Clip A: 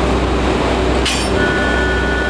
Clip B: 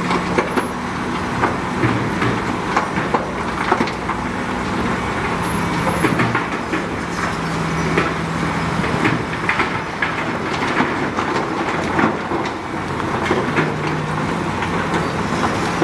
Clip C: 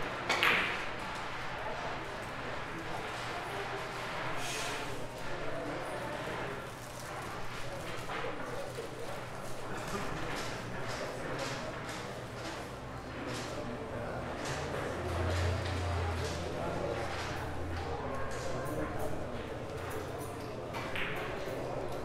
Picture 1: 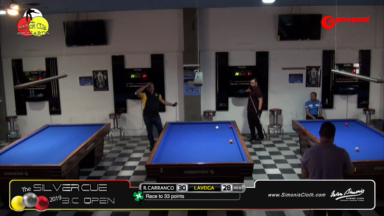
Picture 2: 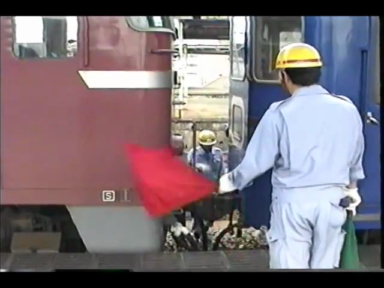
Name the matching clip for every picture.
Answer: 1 C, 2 A